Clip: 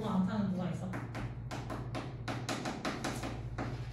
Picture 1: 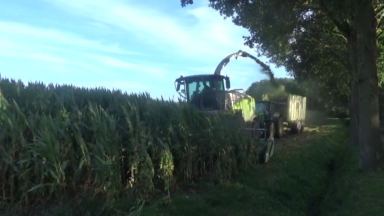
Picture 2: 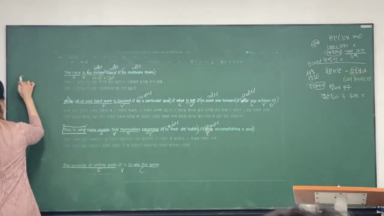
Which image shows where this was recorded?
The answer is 2